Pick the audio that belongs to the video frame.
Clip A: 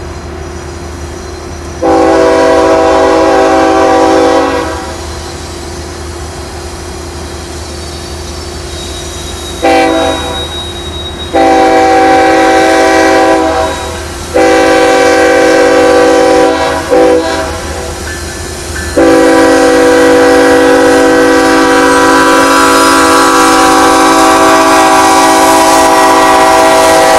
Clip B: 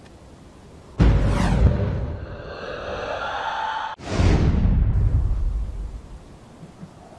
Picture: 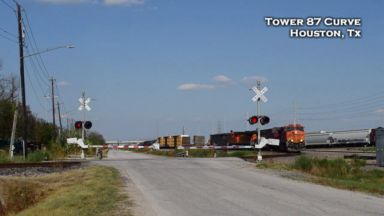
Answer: A